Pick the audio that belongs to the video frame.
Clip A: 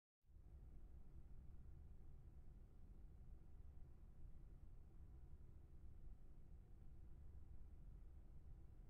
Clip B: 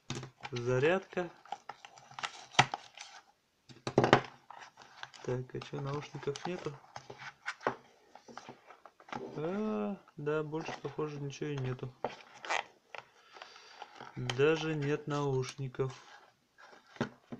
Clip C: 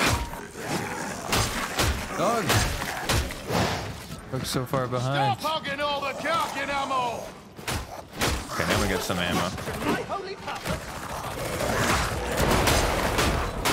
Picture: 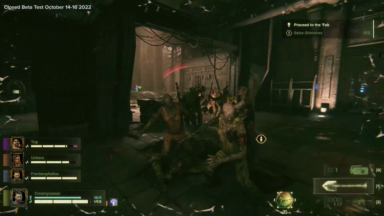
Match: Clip C